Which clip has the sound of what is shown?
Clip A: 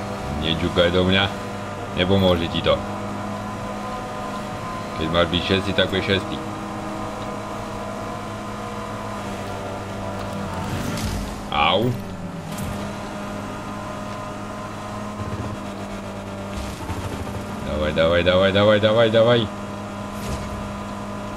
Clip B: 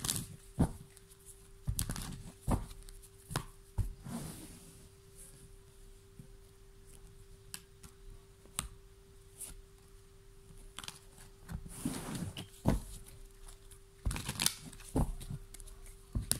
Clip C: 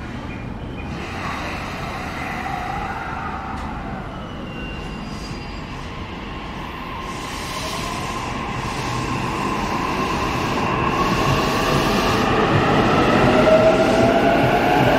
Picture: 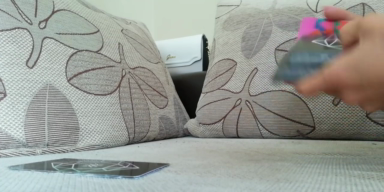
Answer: B